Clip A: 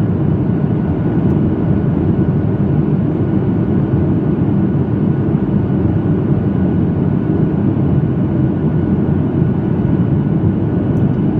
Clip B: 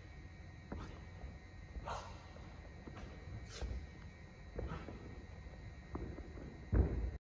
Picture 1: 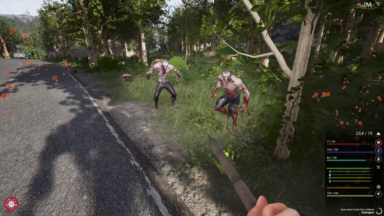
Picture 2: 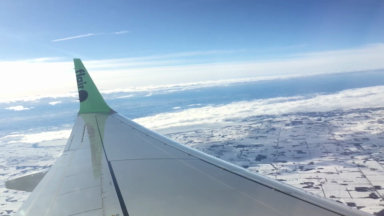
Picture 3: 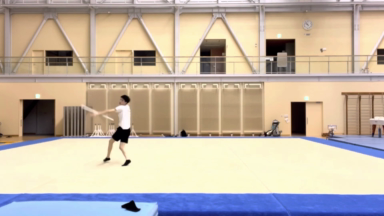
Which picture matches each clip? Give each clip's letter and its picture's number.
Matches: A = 2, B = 3